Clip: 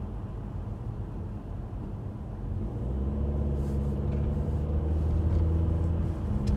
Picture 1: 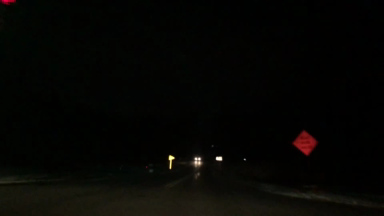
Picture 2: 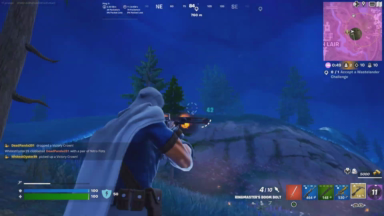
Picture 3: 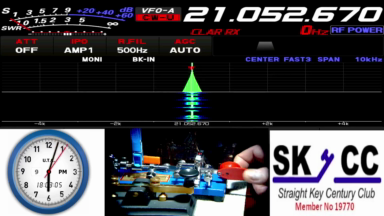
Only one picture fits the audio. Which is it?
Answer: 1